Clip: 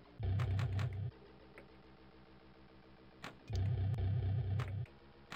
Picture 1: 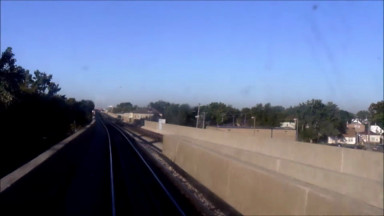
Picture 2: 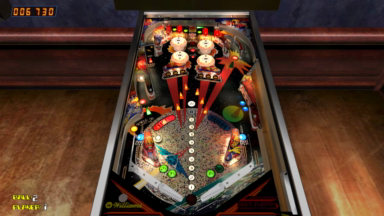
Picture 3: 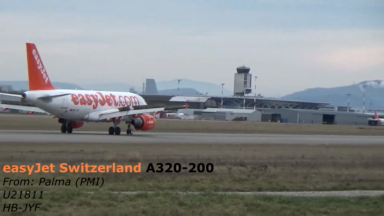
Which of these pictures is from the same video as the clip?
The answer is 2